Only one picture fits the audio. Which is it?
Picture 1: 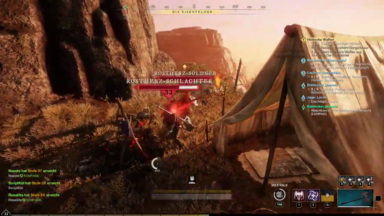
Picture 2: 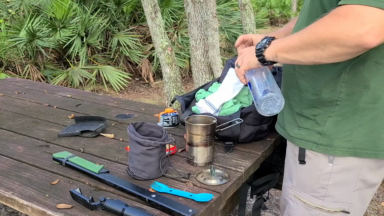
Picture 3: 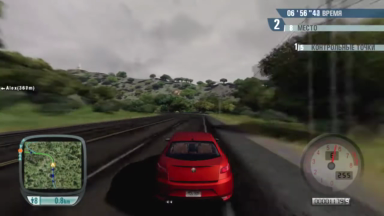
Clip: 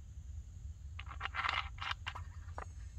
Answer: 2